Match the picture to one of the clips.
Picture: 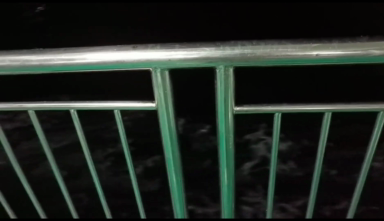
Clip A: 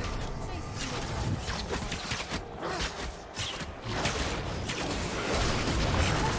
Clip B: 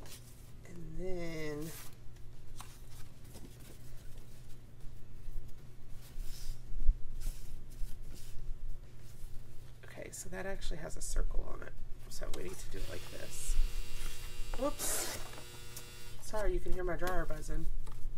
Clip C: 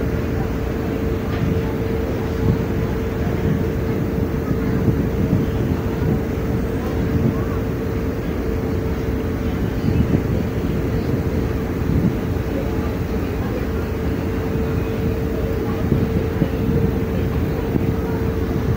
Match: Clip C